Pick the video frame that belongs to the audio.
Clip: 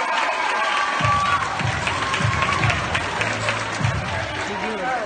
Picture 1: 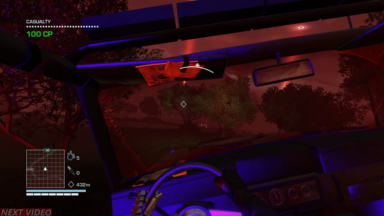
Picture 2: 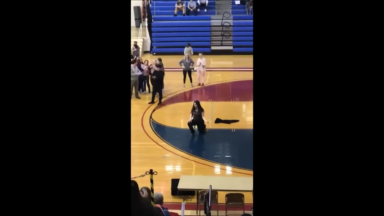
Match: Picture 2